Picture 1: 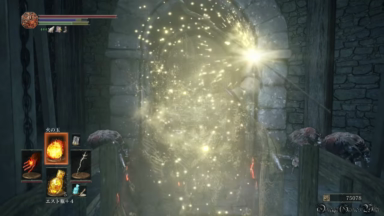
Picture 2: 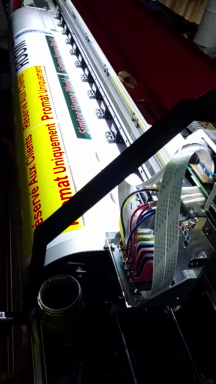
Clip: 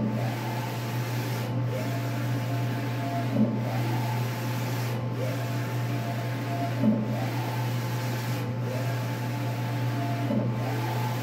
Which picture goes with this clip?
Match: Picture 2